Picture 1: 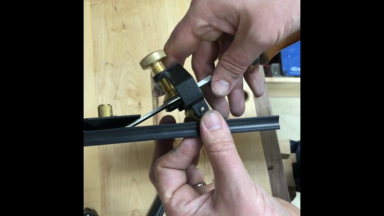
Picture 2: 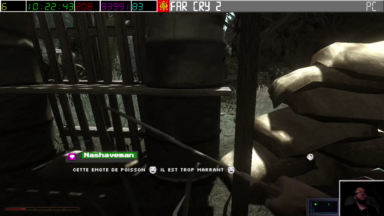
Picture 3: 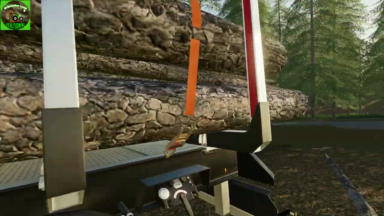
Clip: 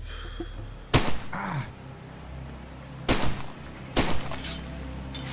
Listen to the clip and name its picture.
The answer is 2